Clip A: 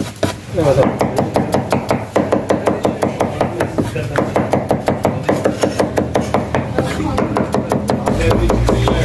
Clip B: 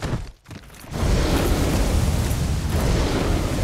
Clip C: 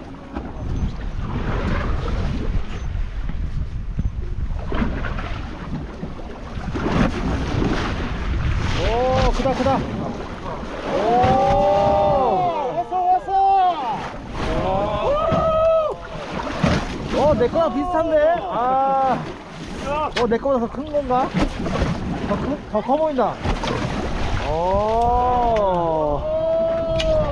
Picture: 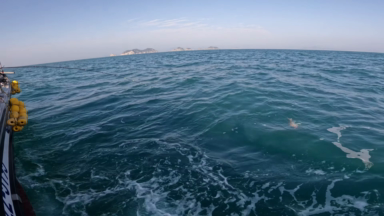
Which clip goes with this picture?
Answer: C